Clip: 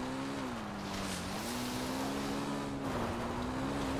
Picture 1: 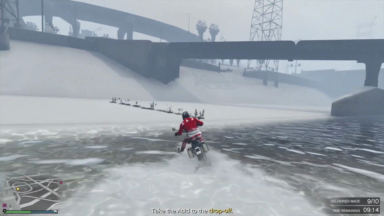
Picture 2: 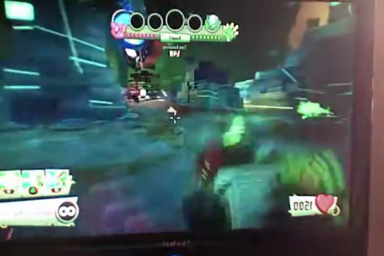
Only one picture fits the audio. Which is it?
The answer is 1